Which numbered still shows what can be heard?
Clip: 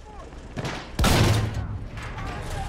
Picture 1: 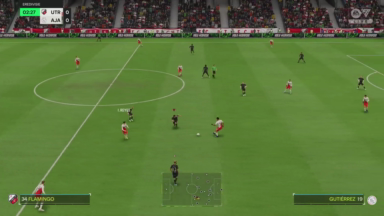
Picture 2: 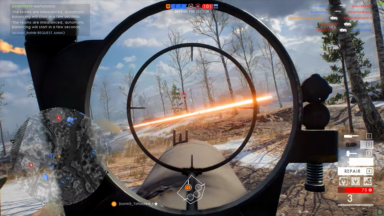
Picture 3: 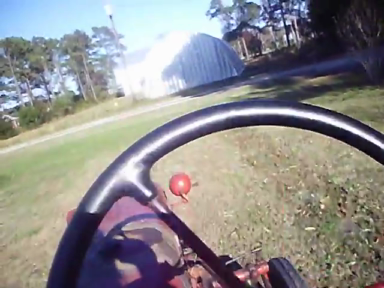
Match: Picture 2